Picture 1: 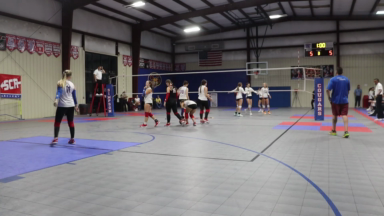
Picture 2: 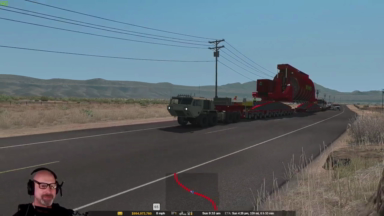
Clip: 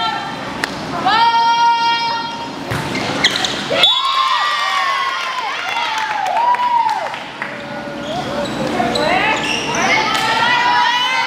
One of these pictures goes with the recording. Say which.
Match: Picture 1